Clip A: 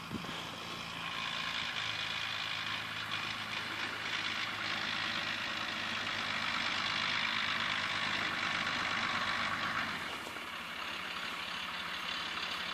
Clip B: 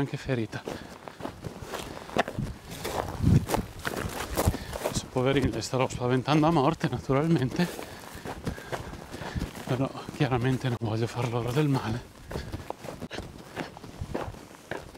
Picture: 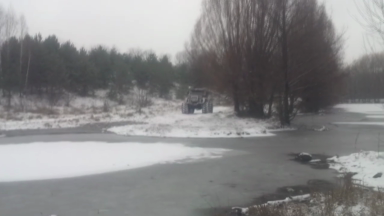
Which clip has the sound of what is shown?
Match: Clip A